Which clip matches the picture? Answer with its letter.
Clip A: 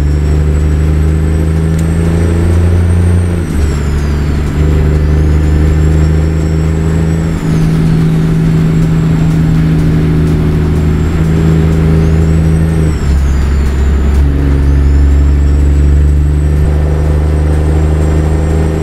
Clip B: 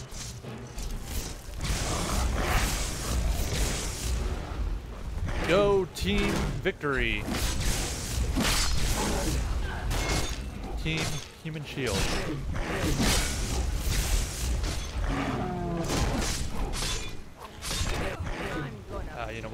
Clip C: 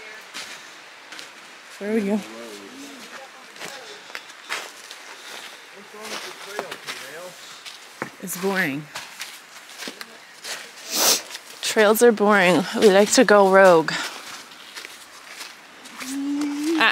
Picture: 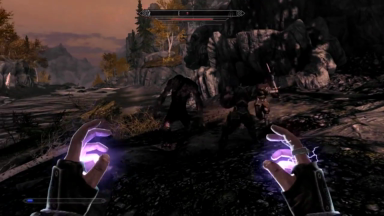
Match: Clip B